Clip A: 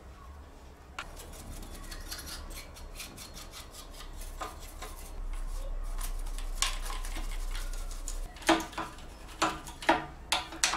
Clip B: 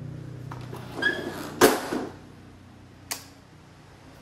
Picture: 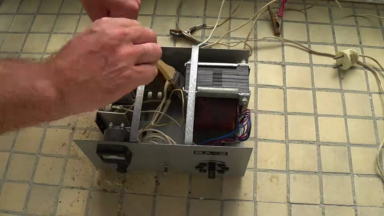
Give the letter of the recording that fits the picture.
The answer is A